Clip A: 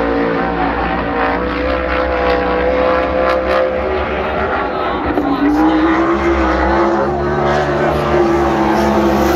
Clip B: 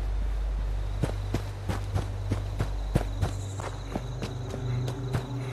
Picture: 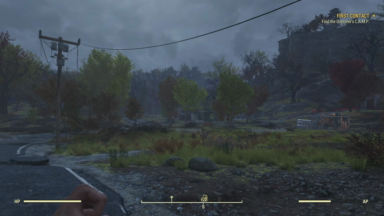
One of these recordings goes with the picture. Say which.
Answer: B